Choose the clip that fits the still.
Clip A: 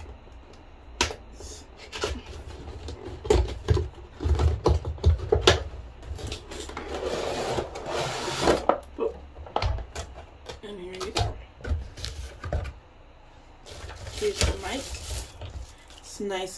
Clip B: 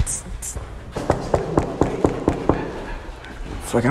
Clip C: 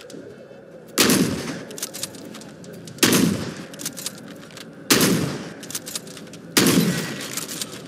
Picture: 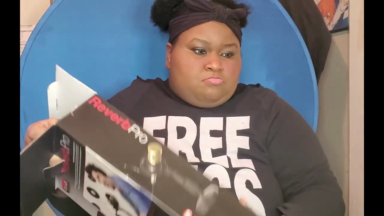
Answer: A